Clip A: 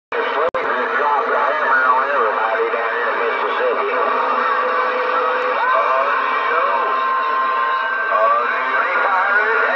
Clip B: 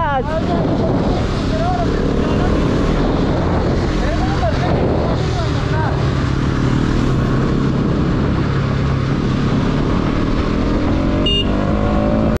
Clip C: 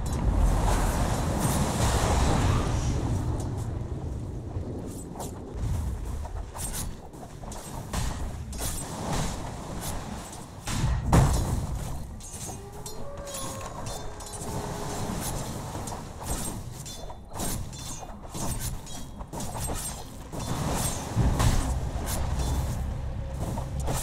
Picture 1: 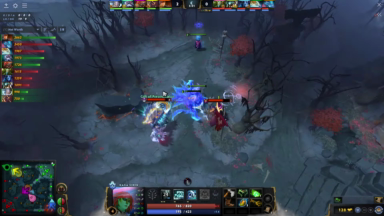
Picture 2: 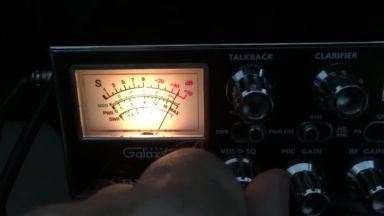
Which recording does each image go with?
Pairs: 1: C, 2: A